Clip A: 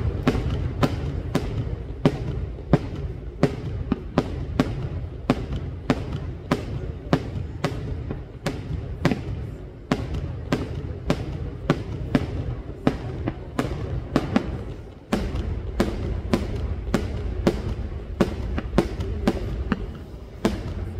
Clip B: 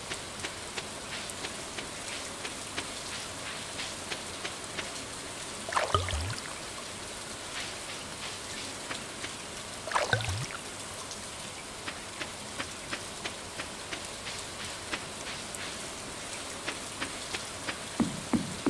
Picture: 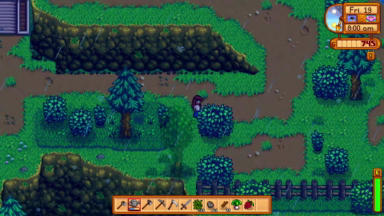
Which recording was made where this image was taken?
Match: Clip B